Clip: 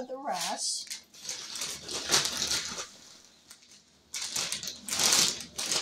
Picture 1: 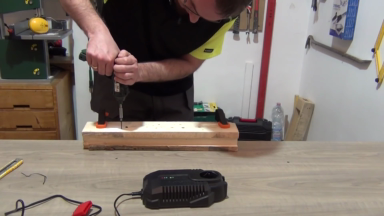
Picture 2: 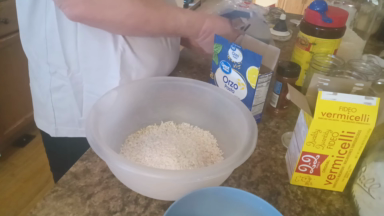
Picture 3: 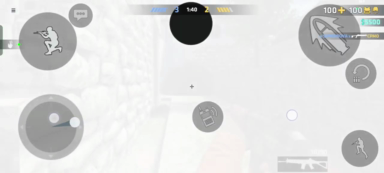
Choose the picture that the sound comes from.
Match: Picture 2